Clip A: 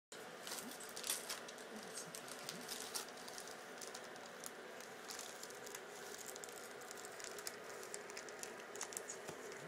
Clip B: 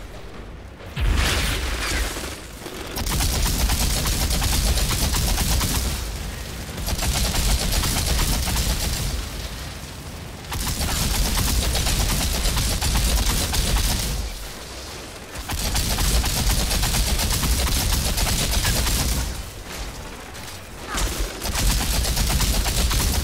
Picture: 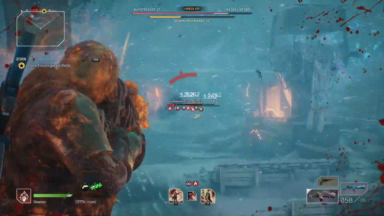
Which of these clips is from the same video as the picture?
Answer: B